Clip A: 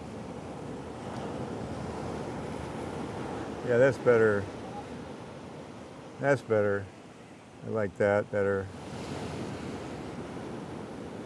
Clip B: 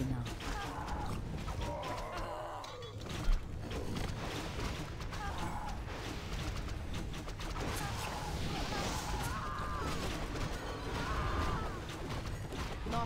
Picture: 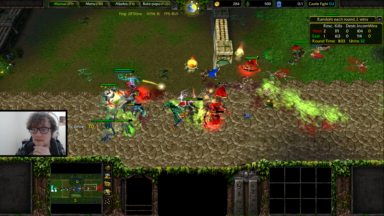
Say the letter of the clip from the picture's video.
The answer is B